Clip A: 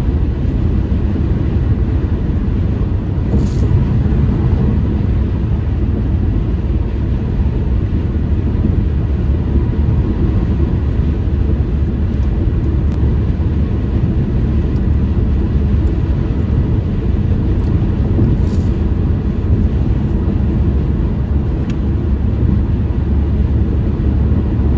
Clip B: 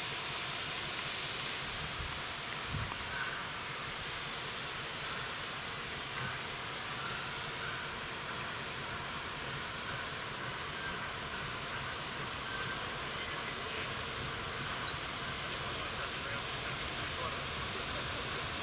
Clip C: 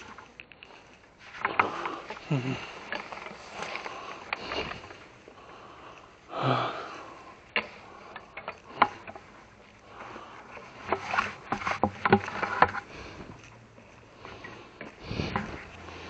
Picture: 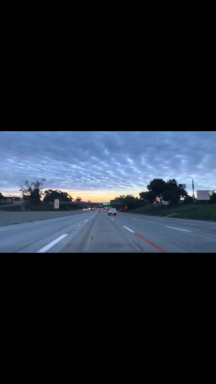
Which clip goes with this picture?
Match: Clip A